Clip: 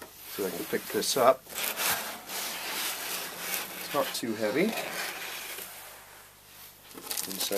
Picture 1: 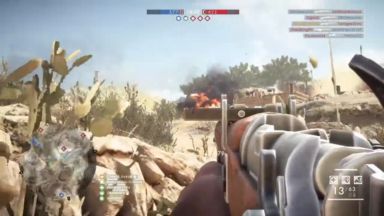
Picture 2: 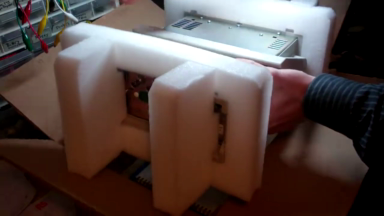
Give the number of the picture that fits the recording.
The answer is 2